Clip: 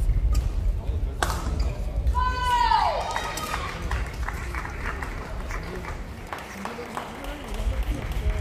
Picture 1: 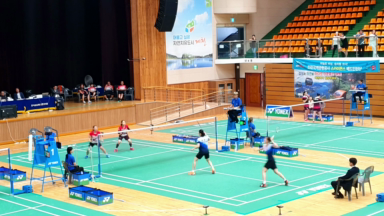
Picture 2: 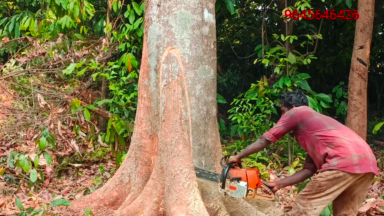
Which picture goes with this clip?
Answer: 1